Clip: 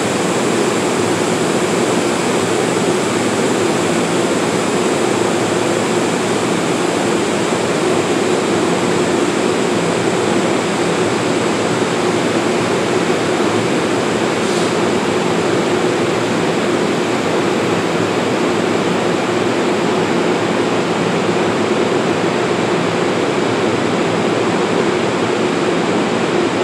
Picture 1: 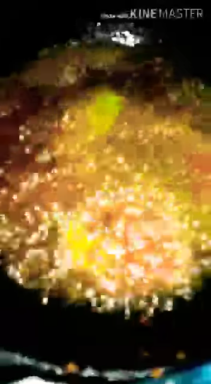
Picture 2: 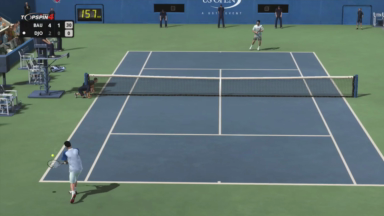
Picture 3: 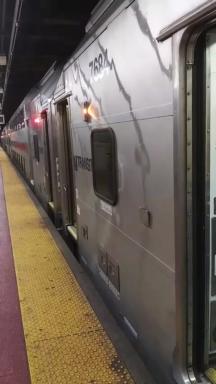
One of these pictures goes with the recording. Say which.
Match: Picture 3